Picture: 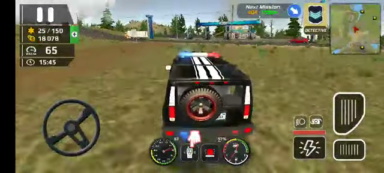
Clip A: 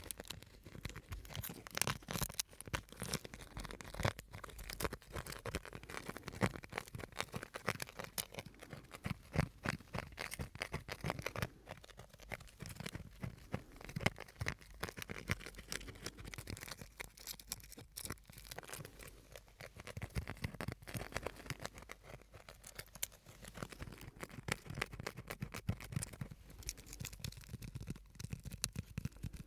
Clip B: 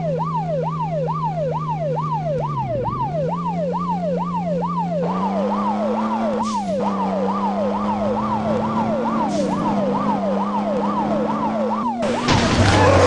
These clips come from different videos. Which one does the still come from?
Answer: B